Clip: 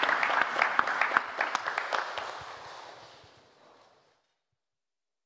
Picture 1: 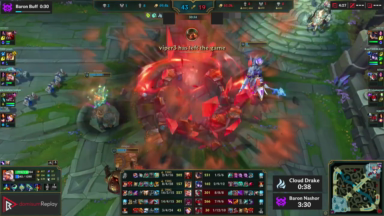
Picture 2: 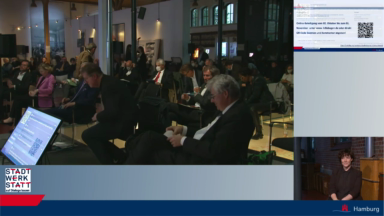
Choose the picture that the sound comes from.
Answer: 2